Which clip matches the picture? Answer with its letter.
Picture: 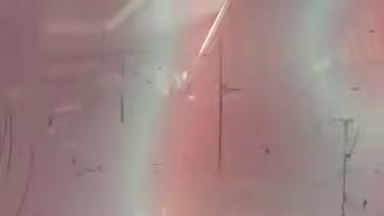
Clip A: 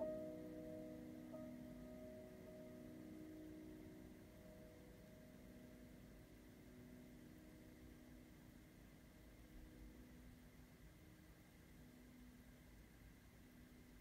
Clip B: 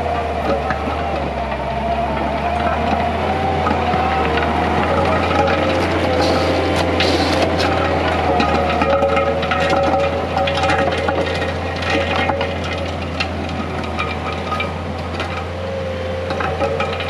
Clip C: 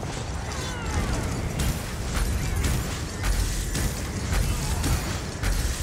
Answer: A